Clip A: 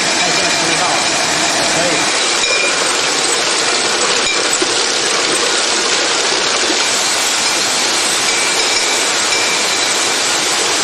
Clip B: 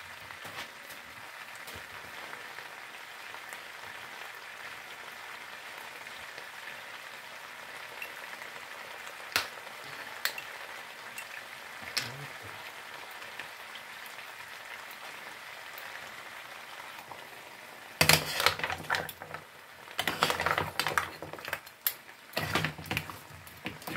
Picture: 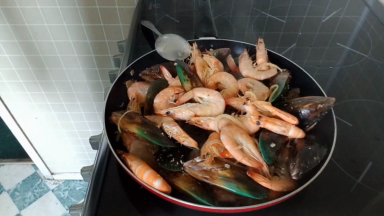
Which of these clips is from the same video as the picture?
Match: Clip B